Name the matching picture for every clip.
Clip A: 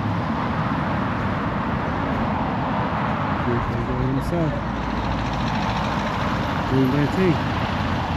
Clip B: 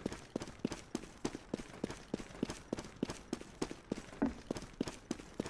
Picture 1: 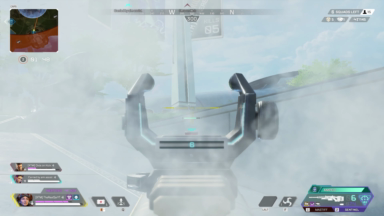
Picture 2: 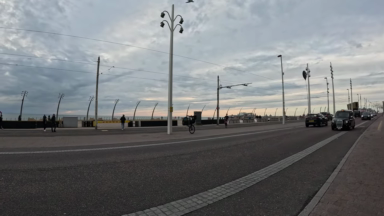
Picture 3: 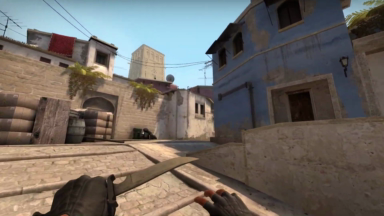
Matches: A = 2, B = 3